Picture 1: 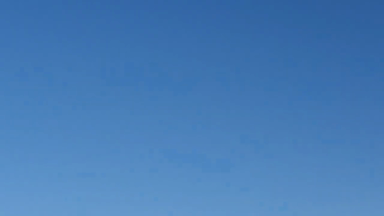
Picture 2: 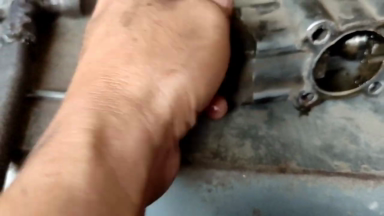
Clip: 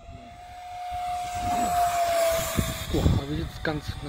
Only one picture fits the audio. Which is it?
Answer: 1